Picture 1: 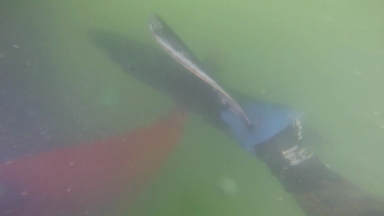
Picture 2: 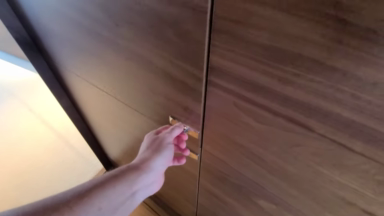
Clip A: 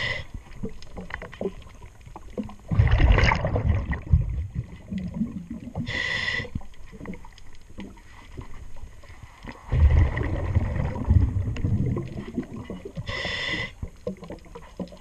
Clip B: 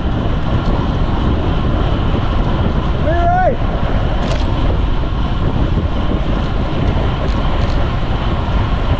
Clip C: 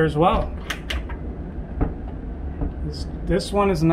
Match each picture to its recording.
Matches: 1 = A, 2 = C